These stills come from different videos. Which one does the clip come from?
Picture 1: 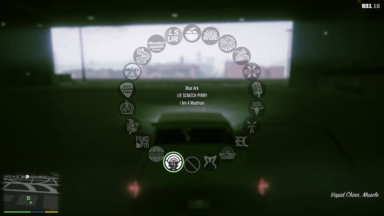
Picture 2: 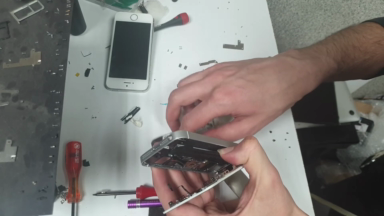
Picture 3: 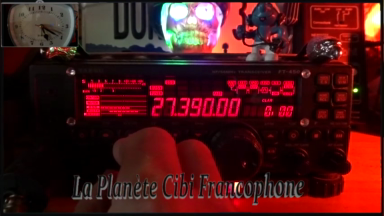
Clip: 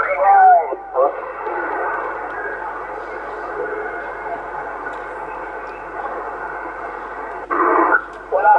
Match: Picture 3